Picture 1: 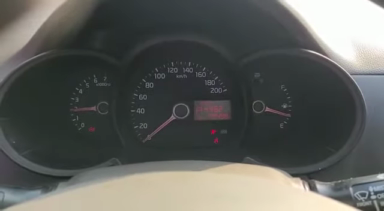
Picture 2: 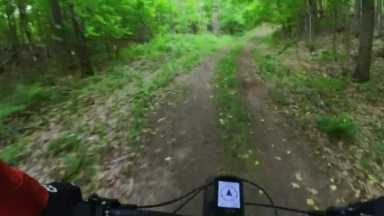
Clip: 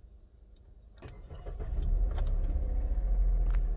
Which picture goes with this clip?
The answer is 1